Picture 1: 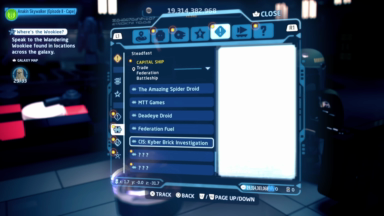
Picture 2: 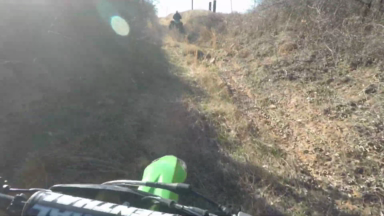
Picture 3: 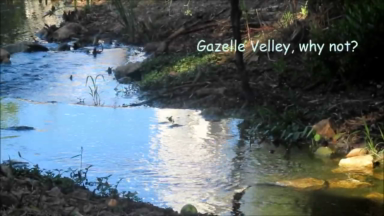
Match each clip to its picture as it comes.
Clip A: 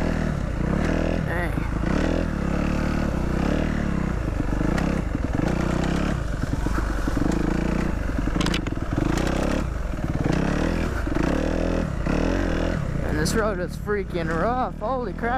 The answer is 2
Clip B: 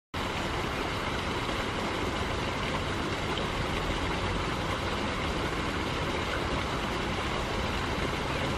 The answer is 3